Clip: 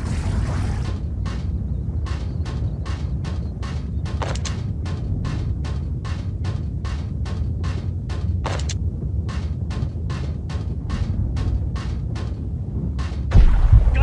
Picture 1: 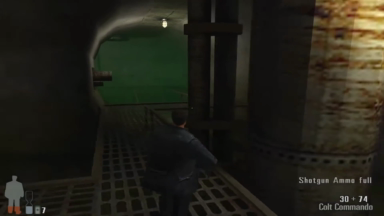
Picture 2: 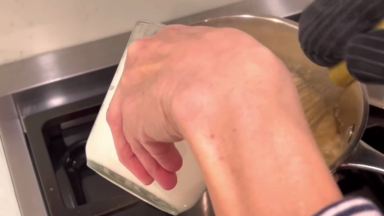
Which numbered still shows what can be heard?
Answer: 1